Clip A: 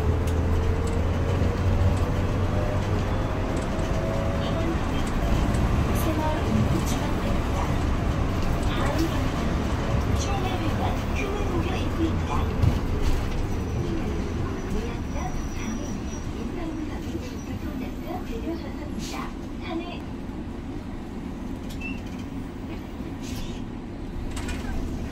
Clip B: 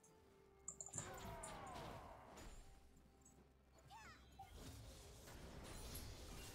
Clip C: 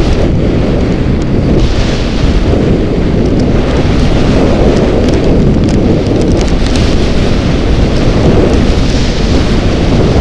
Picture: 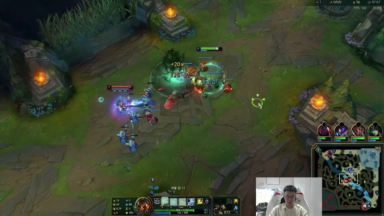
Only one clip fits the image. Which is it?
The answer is B